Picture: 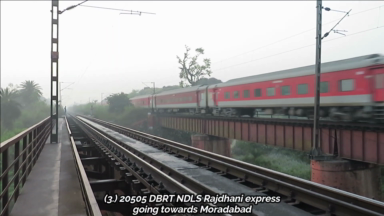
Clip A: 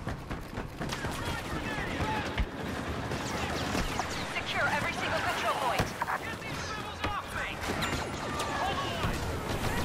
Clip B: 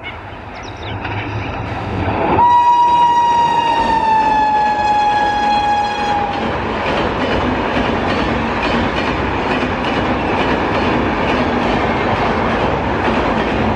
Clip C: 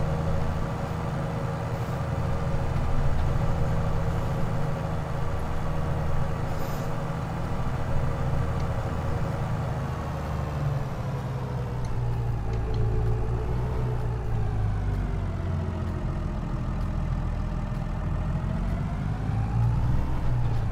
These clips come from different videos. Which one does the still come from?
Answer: B